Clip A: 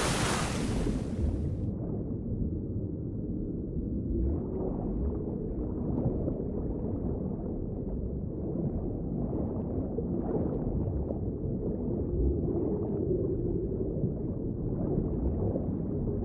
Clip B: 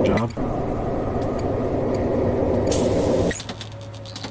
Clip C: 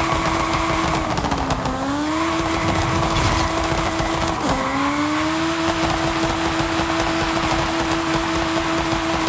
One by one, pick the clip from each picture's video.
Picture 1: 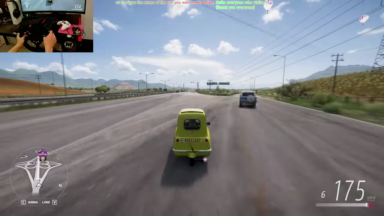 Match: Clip C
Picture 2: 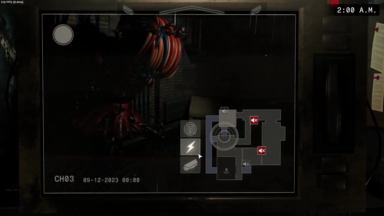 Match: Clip B